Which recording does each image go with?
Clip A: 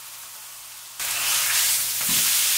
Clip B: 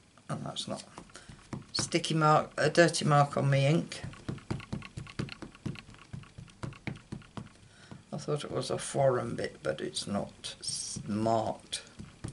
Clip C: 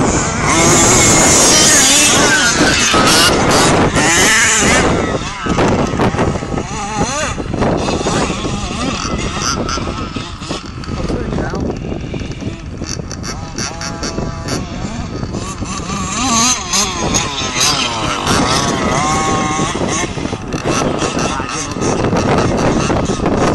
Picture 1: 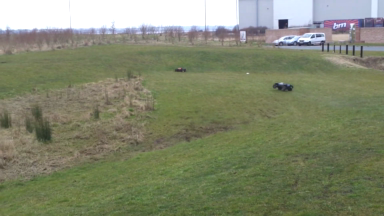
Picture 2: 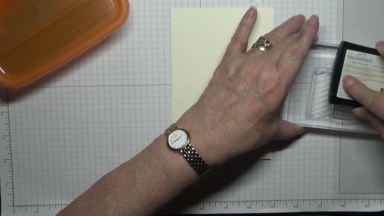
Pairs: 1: C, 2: B